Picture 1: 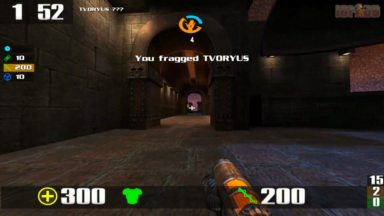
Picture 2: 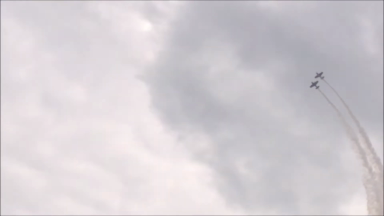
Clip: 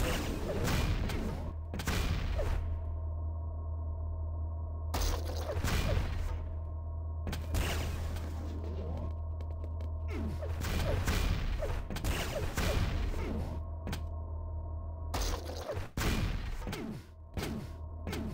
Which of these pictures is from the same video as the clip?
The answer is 1